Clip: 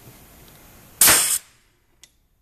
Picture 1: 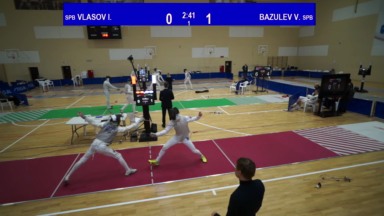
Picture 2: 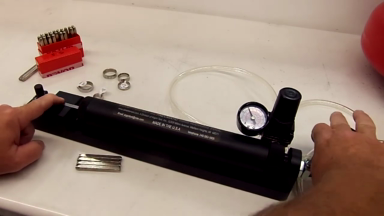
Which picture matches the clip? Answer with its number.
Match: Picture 2